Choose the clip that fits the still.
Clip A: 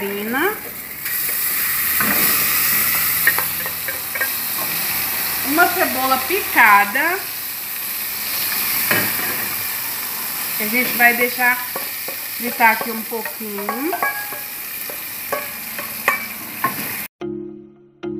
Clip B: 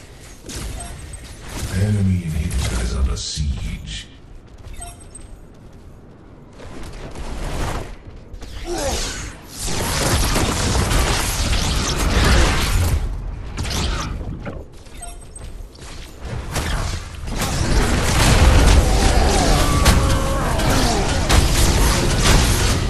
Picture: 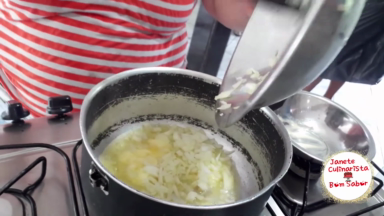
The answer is A